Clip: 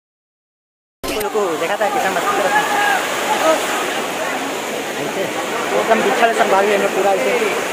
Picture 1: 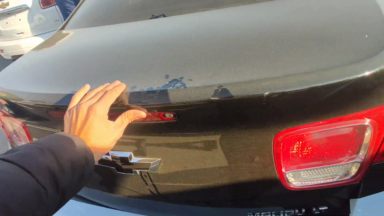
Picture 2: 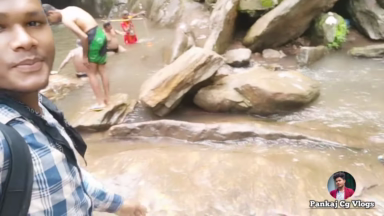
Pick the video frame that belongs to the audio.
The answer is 2